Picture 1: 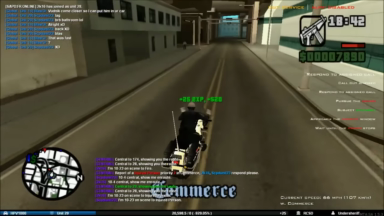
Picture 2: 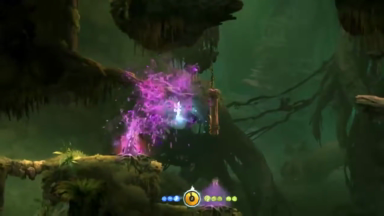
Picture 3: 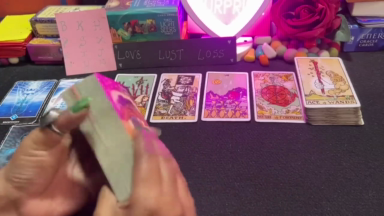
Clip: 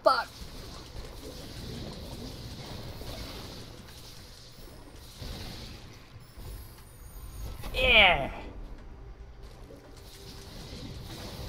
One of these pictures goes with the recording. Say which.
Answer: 2